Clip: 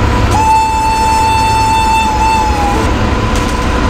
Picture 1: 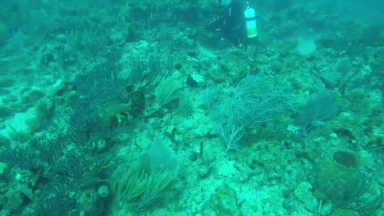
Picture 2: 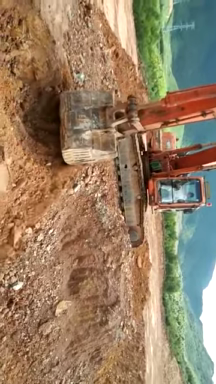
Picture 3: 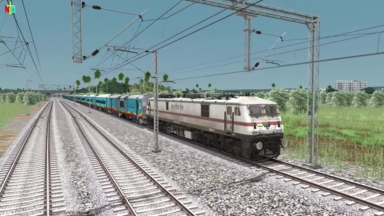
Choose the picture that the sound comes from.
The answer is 3